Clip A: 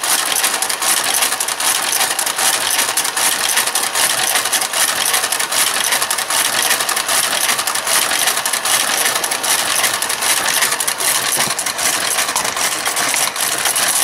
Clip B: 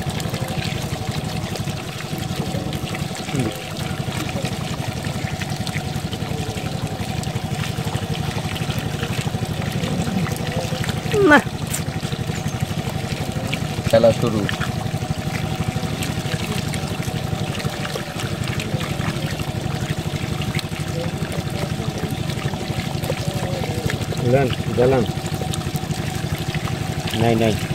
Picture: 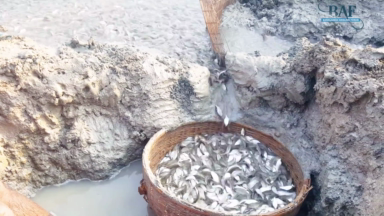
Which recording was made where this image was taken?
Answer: B